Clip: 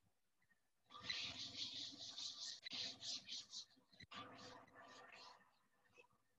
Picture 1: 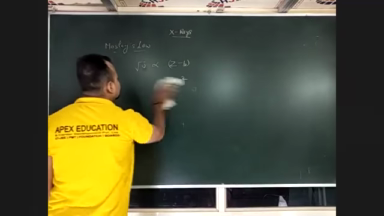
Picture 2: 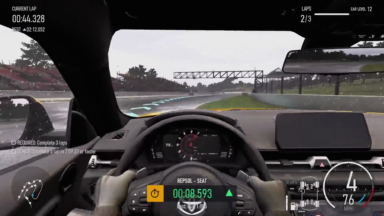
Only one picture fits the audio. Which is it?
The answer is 1